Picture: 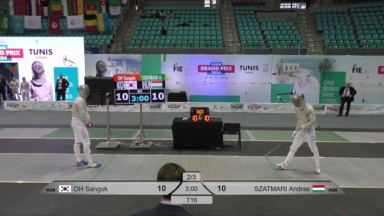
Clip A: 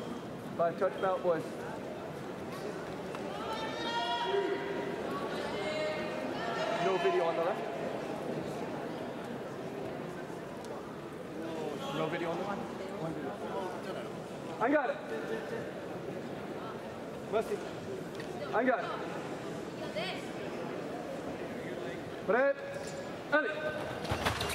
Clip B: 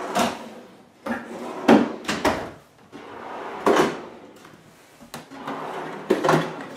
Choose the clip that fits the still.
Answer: A